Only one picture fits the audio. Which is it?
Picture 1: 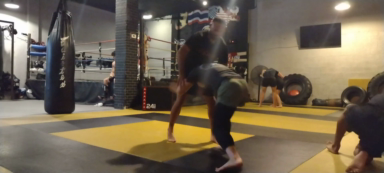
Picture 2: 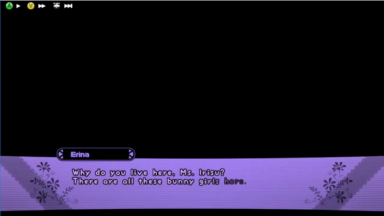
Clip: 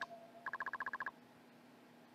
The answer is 2